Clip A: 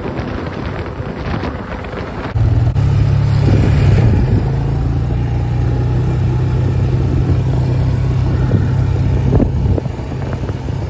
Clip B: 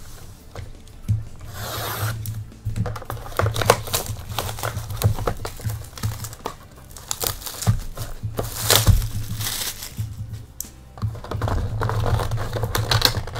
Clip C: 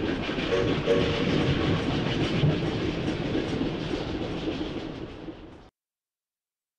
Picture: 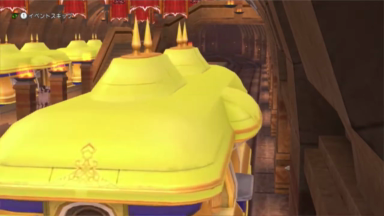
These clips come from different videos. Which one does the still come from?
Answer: C